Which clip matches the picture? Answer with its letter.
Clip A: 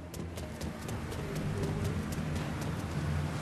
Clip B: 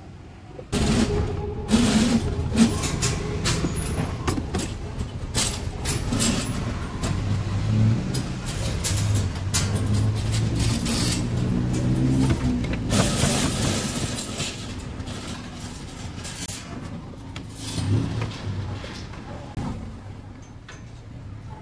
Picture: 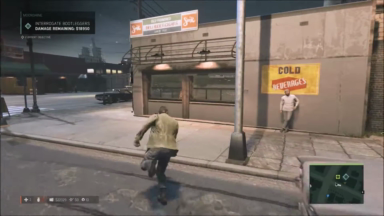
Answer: A